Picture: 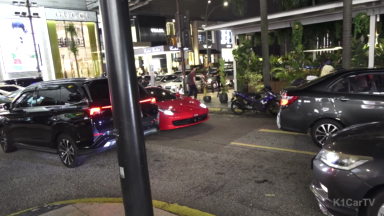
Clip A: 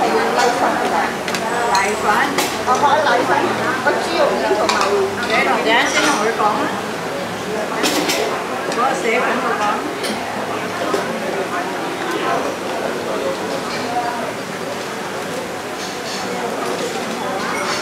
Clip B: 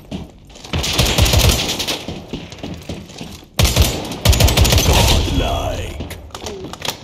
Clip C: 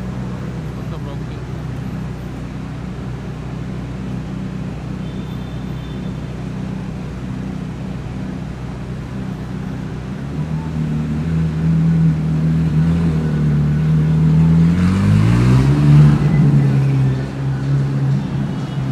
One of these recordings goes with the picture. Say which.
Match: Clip C